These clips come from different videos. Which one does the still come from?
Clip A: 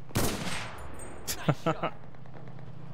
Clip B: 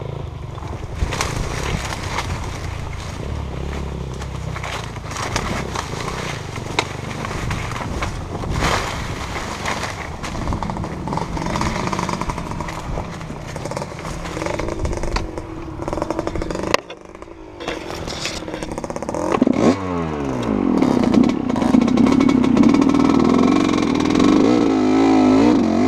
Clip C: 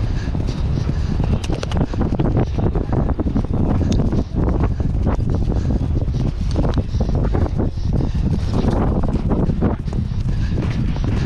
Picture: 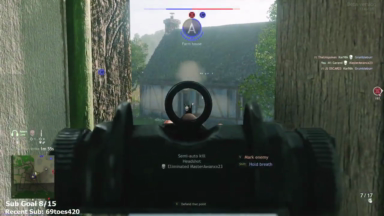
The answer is A